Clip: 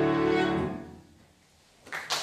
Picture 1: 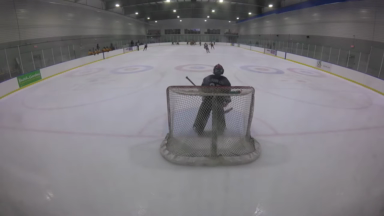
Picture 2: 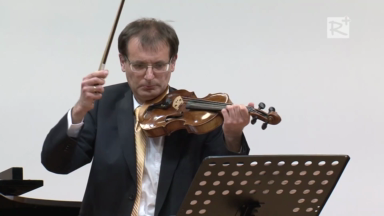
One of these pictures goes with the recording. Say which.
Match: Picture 2